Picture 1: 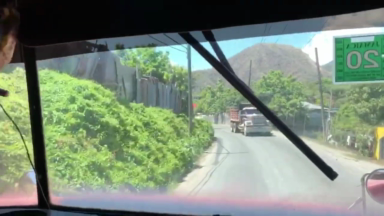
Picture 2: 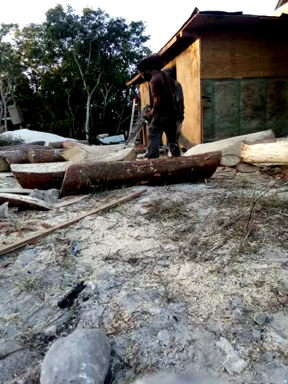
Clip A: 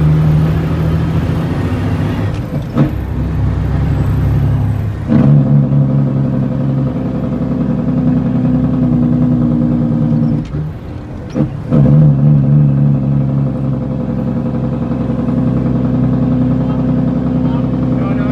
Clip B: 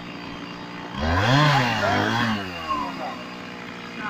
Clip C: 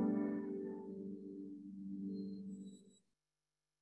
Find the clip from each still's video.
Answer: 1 A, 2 B